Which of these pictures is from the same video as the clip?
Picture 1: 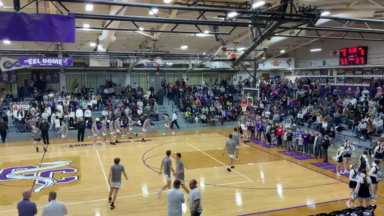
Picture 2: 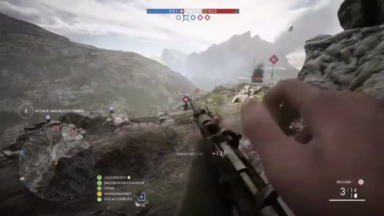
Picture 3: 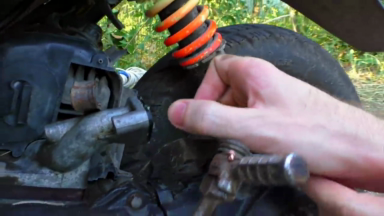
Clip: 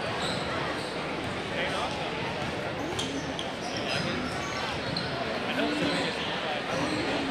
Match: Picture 1